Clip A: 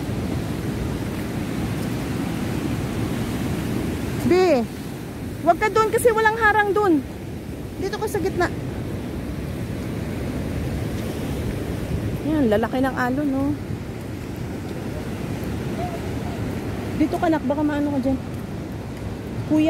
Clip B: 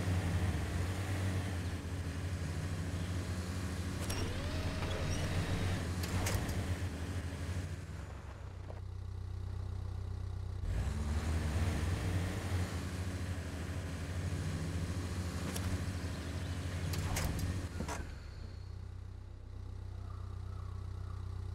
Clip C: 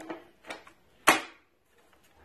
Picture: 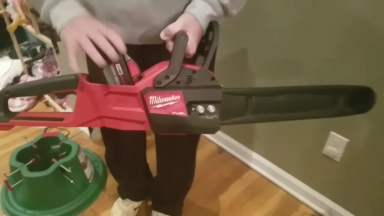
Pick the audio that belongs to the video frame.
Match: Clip C